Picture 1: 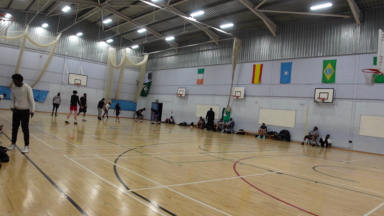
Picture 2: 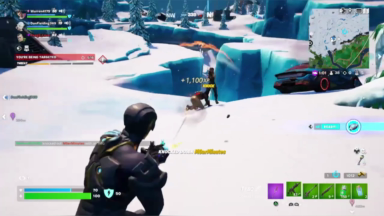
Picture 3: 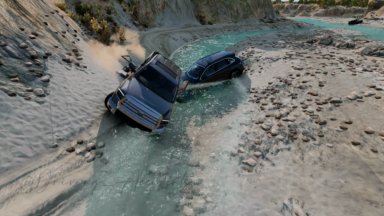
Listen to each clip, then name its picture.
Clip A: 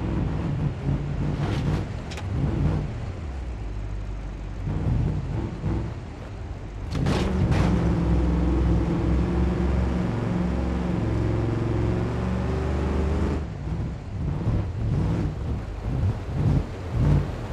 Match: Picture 3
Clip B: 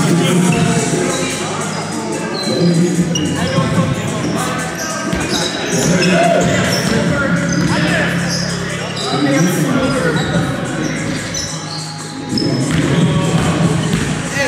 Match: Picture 1